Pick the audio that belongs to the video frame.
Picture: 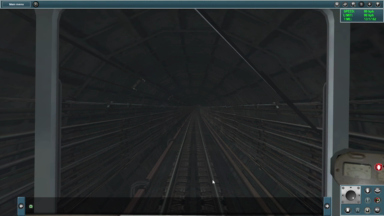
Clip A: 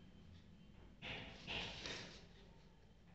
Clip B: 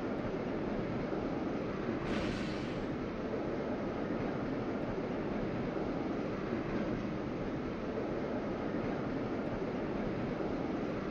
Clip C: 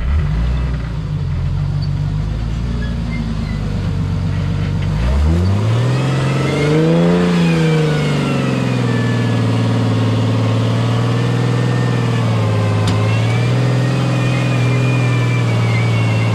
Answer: B